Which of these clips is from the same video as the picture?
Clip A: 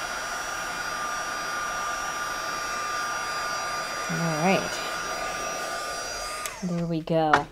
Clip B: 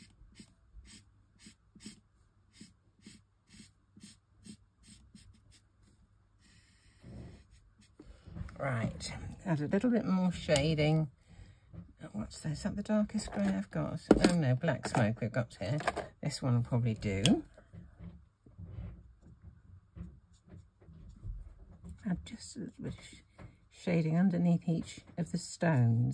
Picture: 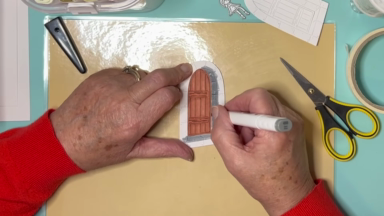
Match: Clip B